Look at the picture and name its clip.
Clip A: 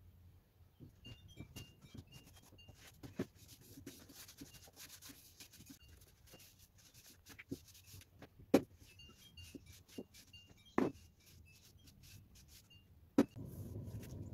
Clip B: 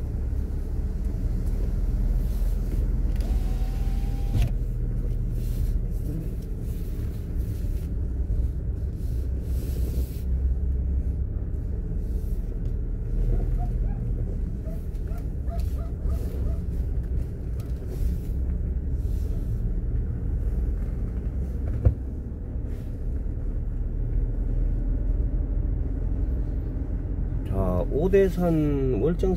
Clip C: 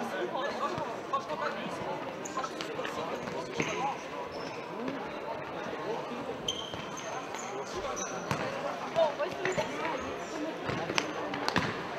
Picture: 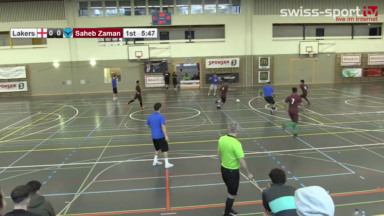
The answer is C